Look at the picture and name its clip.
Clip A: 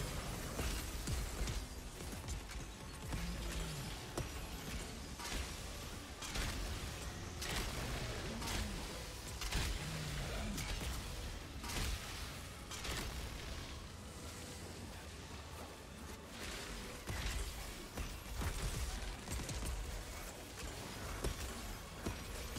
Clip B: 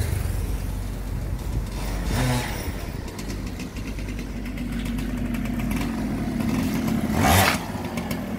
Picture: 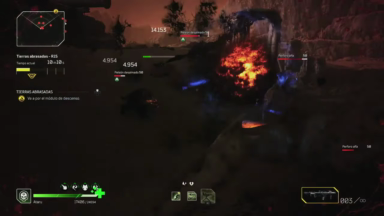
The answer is A